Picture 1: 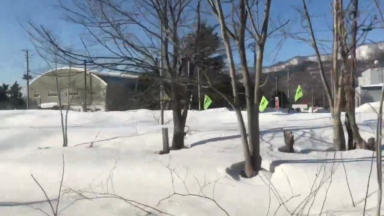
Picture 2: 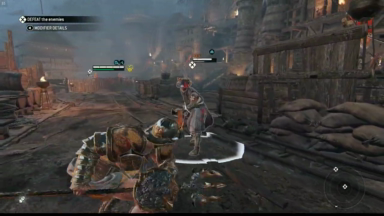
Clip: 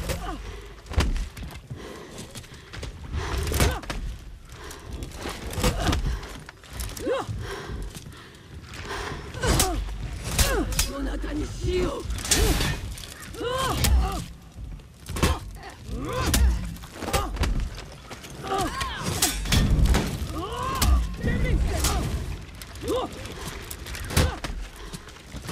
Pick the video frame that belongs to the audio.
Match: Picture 2